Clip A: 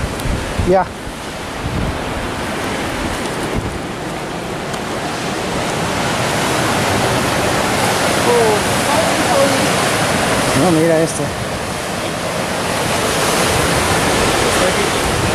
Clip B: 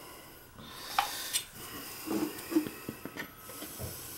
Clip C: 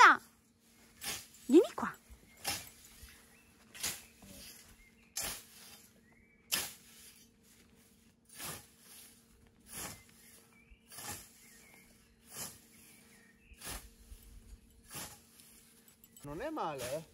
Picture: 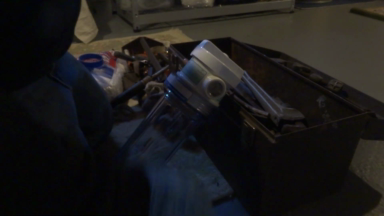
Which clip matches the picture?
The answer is B